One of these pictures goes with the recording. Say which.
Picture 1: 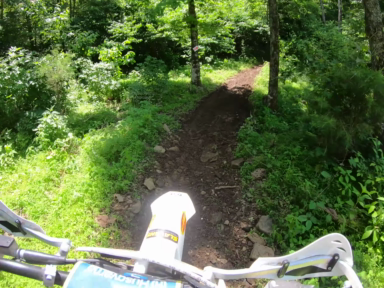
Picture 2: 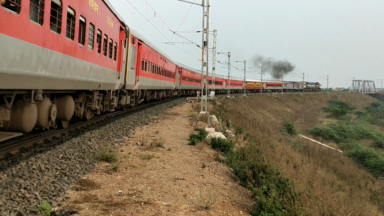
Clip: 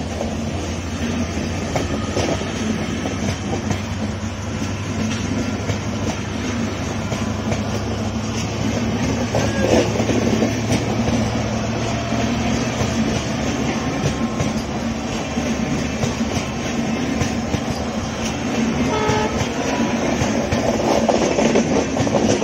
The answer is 2